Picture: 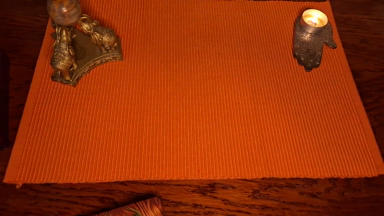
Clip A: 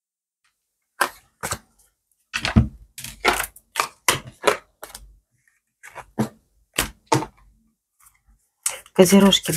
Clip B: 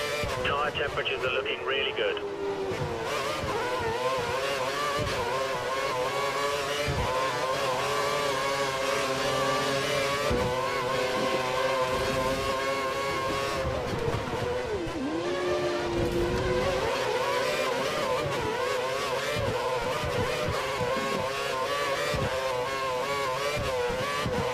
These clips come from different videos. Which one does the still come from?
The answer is A